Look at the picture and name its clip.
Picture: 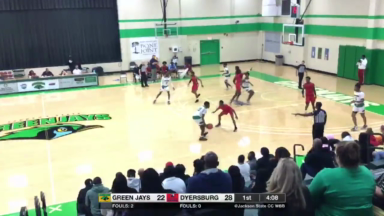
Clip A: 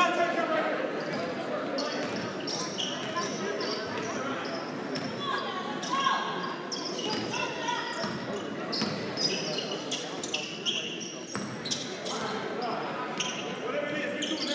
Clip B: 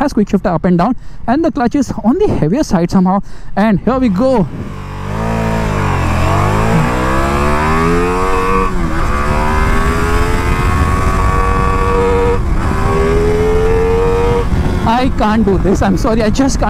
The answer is A